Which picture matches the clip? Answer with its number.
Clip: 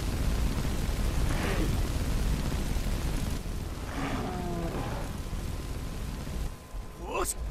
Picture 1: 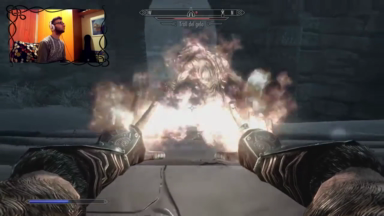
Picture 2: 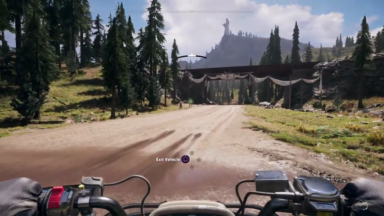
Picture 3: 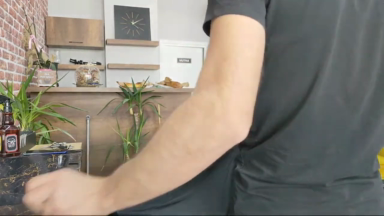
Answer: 1